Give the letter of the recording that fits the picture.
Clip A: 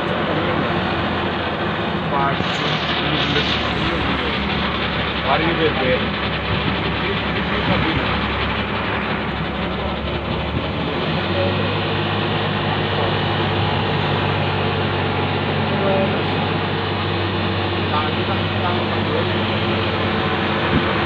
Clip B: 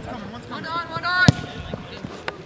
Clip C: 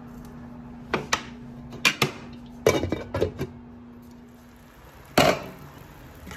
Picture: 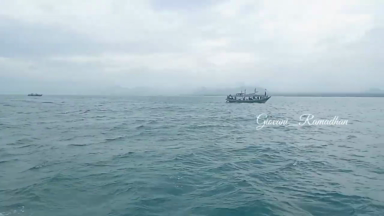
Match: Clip A